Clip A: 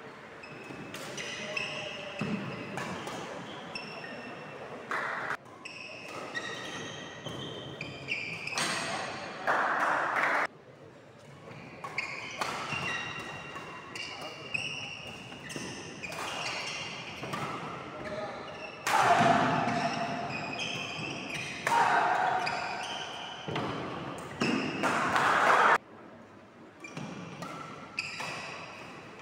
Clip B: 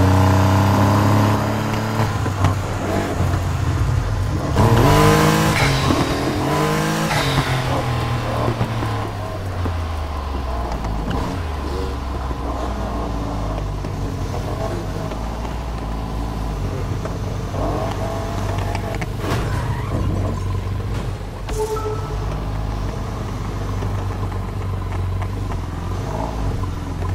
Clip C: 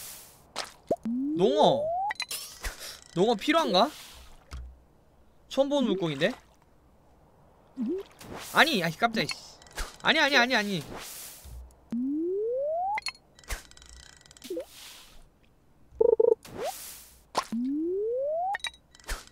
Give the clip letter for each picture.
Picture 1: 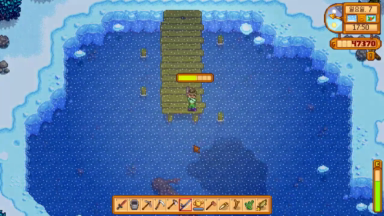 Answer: C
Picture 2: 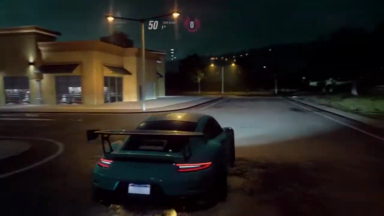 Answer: B